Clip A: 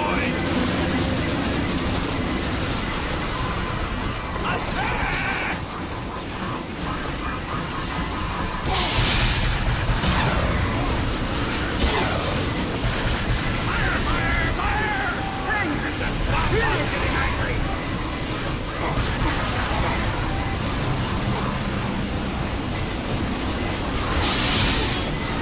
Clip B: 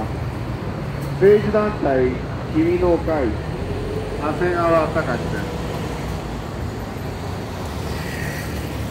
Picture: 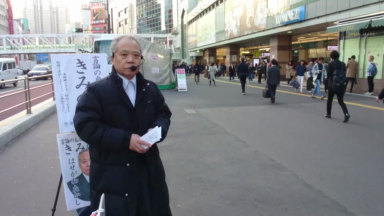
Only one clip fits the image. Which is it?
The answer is B